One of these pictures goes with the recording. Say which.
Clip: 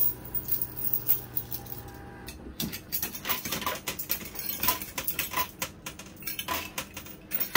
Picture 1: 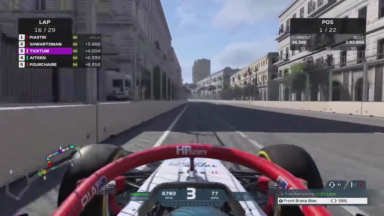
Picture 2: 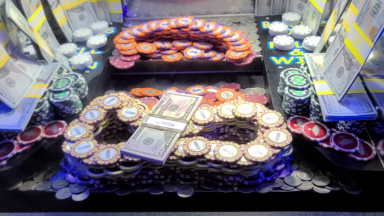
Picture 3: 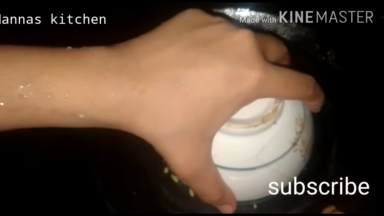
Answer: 2